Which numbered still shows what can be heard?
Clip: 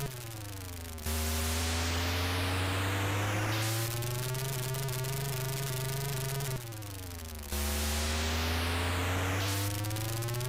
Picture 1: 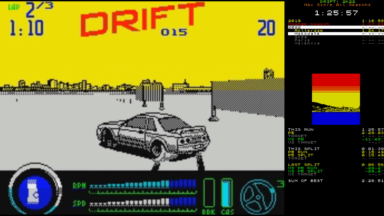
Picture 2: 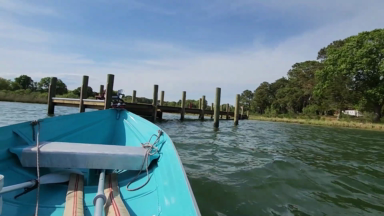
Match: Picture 1